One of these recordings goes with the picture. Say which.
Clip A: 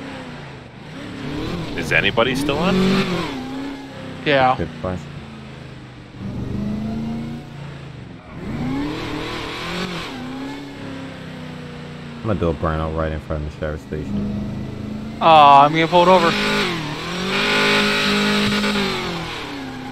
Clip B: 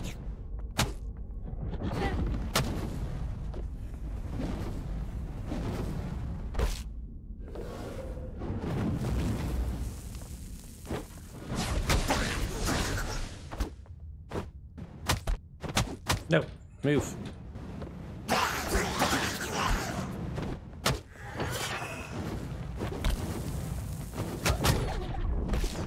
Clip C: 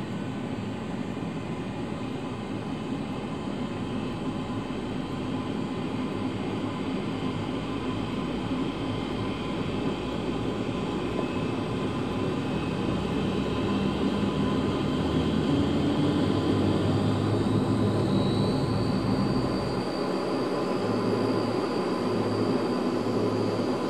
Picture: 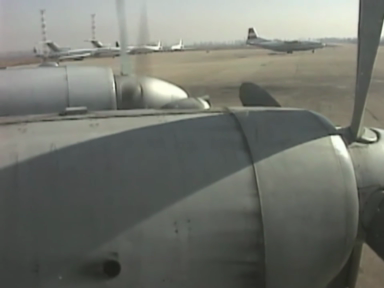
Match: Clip C